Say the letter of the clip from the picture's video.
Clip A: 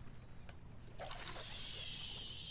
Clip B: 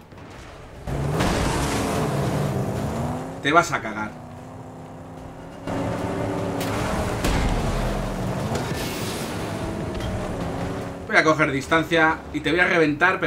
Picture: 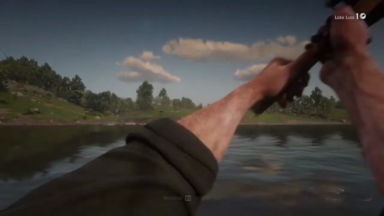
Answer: A